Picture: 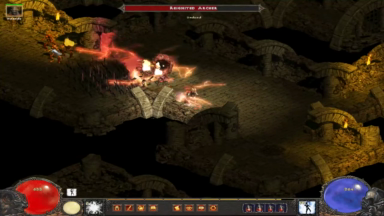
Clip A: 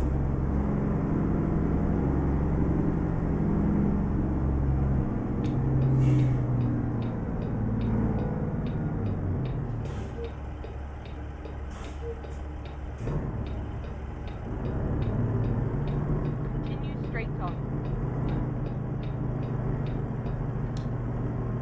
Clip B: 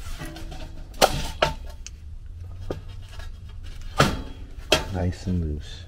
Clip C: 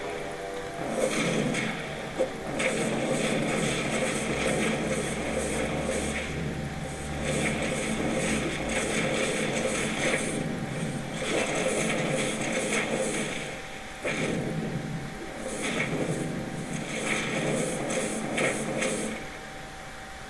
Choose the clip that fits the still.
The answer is C